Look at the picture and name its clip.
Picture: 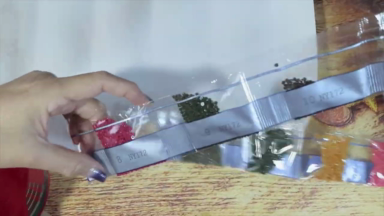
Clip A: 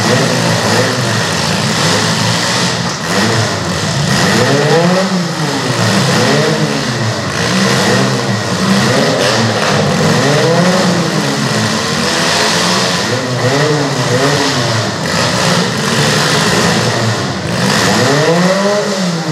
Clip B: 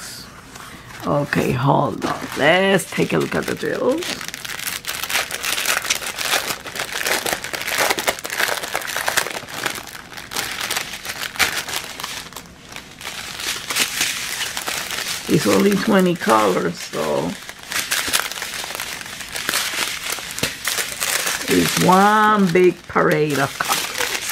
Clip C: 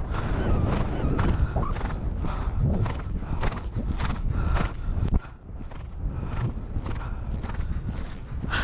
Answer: B